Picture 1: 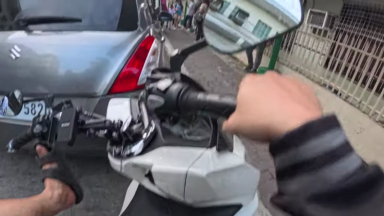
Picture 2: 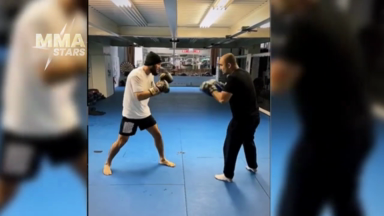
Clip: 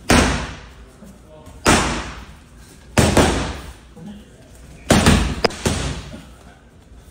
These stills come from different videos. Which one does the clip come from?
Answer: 2